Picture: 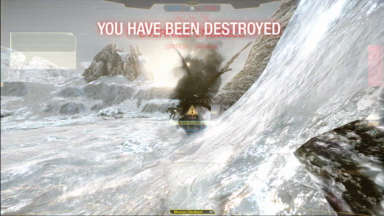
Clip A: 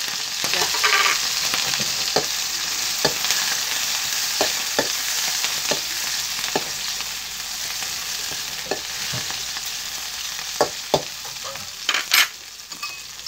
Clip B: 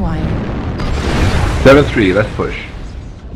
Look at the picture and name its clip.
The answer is B